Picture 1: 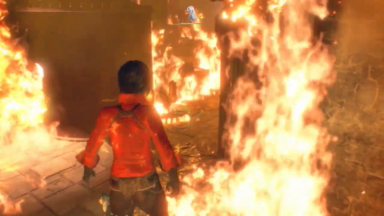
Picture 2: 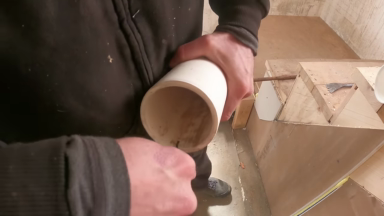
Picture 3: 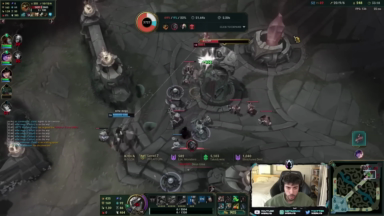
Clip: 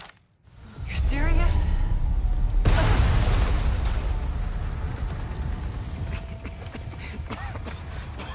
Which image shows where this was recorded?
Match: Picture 1